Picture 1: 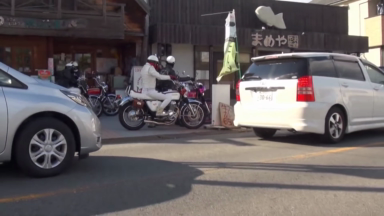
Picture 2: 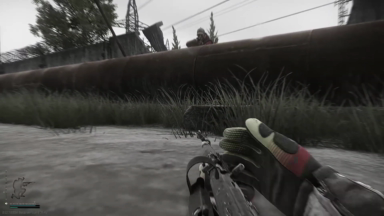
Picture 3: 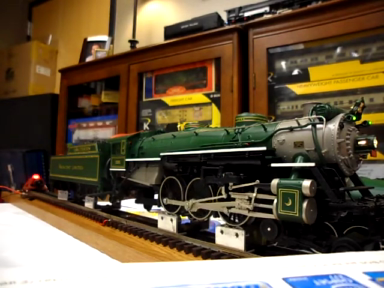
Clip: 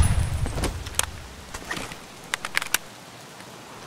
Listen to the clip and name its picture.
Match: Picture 2